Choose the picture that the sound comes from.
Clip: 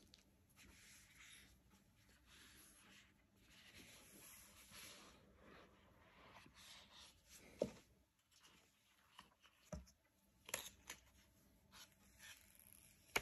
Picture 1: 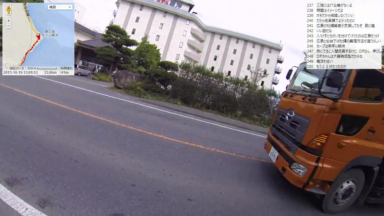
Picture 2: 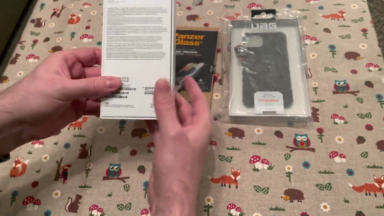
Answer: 2